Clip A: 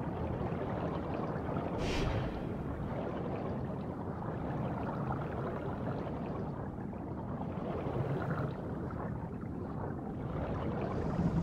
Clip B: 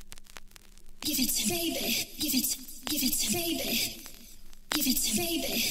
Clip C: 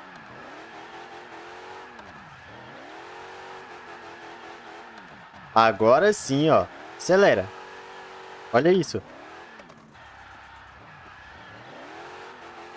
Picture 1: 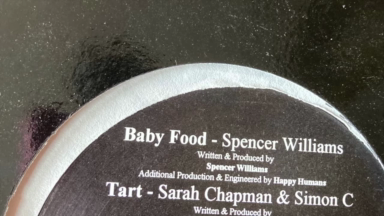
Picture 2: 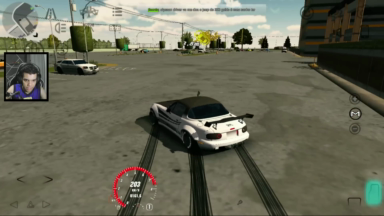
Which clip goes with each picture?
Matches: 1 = B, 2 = C